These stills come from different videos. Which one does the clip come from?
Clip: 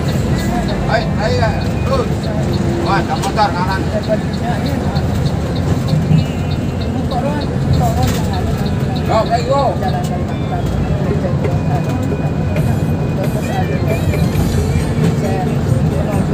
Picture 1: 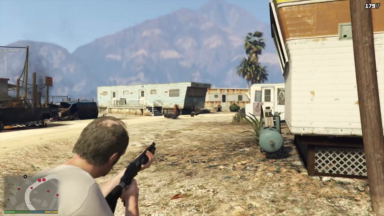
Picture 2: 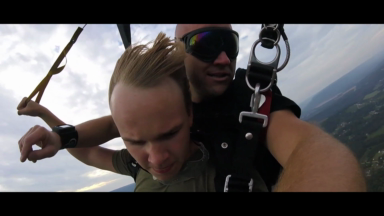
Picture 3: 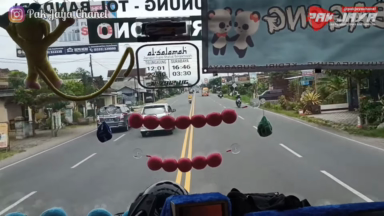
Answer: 3